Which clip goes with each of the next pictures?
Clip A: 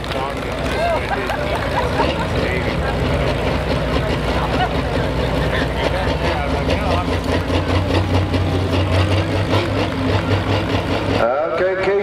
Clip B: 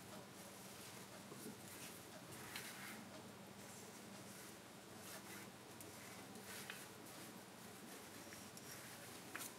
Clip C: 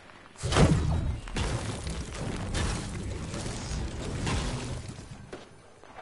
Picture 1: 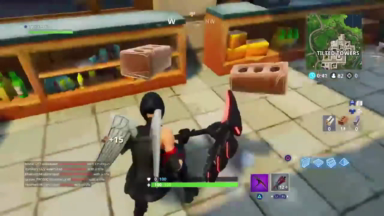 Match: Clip C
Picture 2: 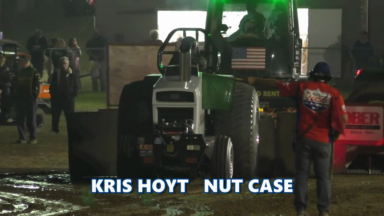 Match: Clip A